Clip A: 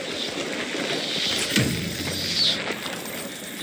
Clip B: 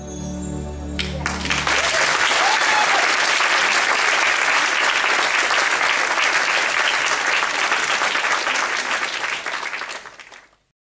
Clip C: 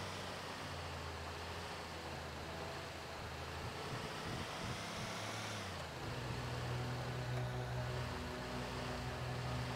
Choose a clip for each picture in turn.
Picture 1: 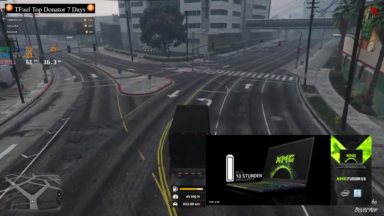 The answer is C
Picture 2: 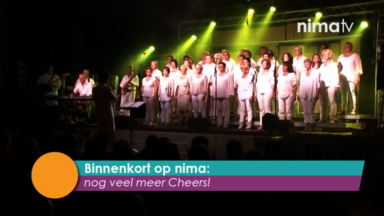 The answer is B